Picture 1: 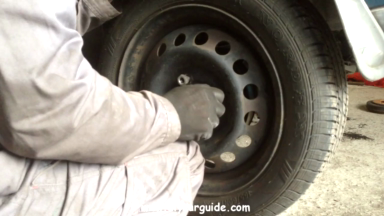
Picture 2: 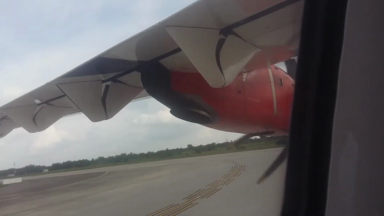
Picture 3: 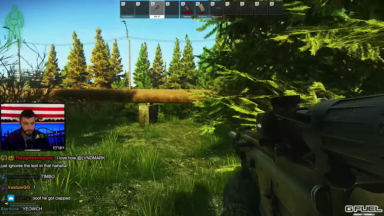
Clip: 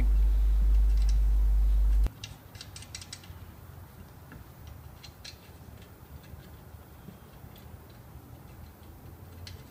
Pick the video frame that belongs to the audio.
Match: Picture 1